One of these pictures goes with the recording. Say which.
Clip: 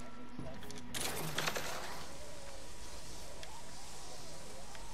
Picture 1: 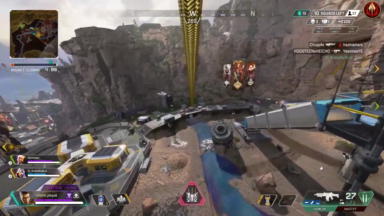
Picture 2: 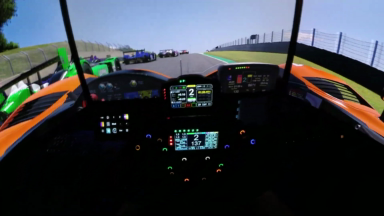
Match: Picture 1